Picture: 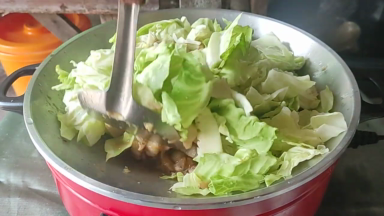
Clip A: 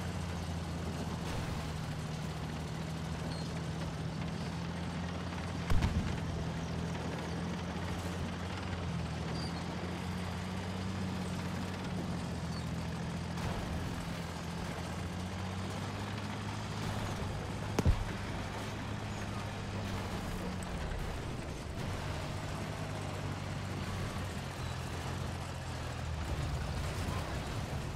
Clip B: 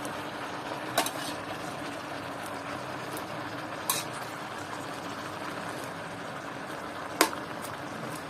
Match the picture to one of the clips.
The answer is B